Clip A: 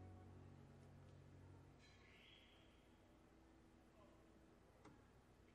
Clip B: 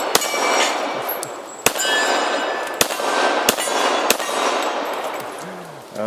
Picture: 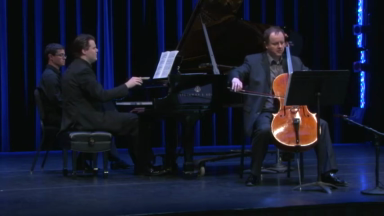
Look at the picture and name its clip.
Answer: A